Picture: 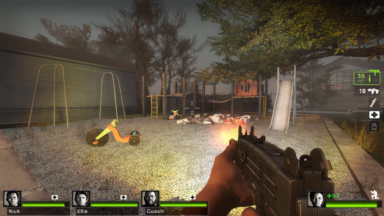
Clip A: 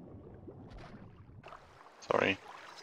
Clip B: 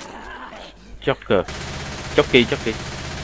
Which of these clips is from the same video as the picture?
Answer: B